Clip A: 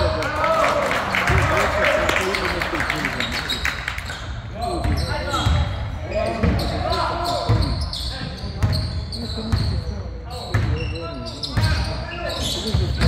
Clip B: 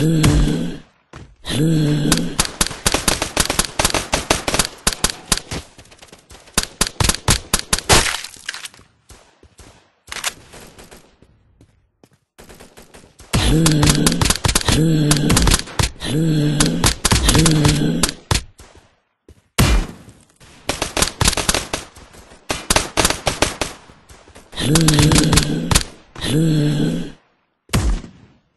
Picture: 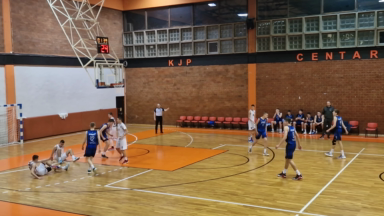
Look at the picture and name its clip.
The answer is A